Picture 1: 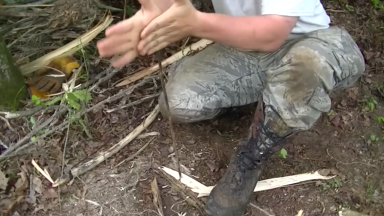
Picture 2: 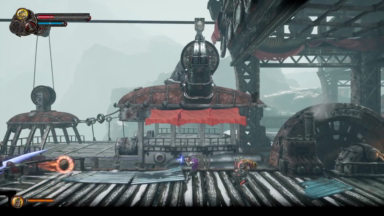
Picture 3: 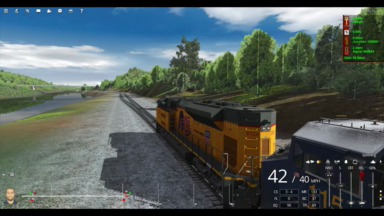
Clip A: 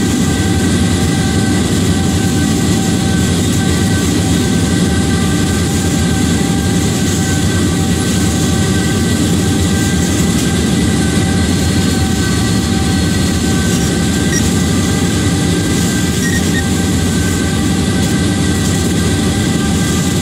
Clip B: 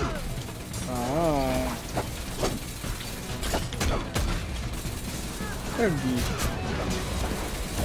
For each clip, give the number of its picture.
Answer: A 3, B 2